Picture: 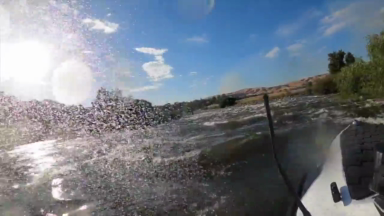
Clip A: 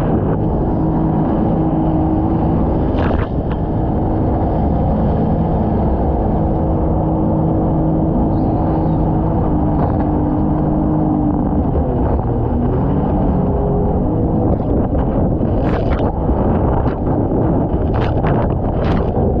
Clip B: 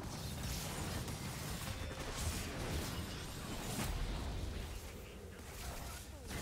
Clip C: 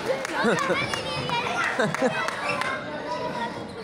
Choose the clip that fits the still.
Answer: A